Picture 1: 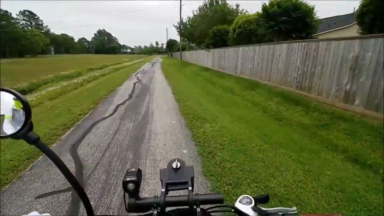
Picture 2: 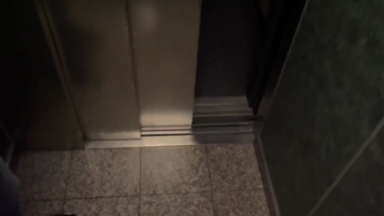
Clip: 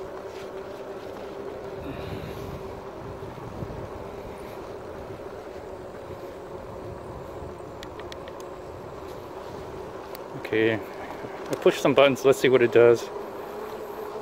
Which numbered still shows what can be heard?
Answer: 1